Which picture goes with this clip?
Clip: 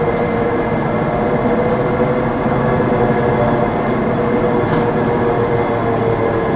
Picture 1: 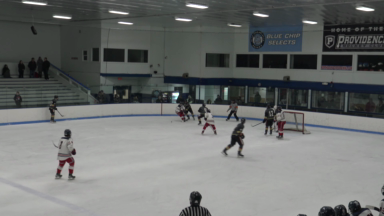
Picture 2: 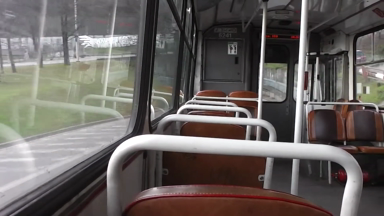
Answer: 2